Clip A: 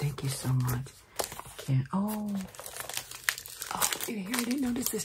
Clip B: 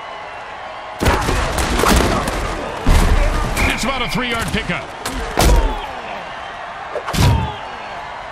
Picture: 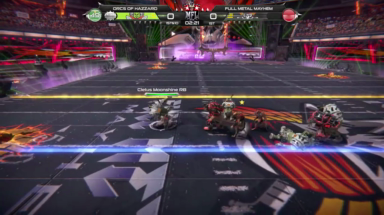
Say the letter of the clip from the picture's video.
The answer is B